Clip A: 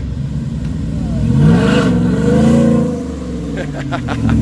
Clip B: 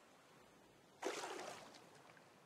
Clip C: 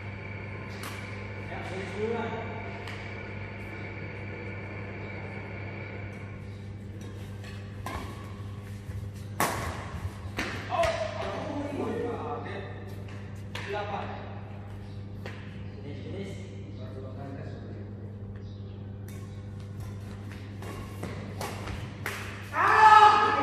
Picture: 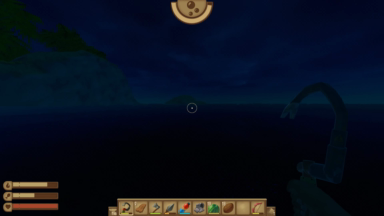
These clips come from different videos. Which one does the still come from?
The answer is B